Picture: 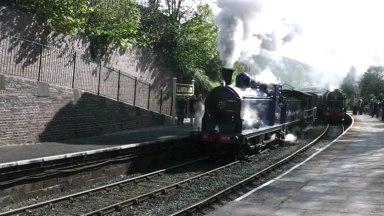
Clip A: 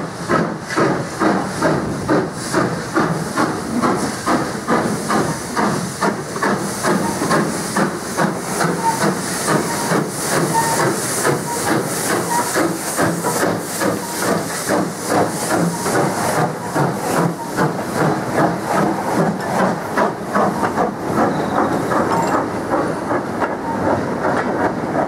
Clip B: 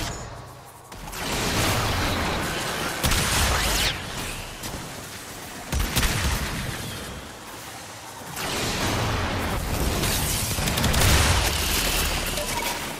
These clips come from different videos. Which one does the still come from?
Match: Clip A